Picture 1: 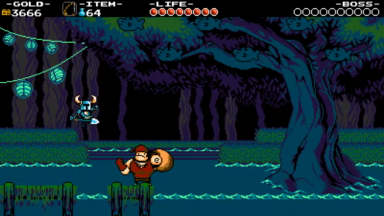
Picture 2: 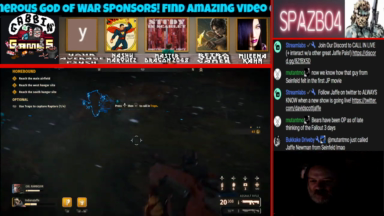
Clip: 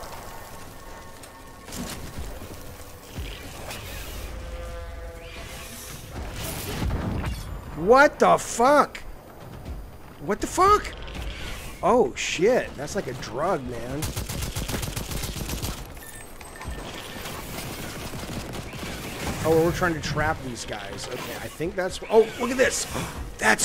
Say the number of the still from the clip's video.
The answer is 2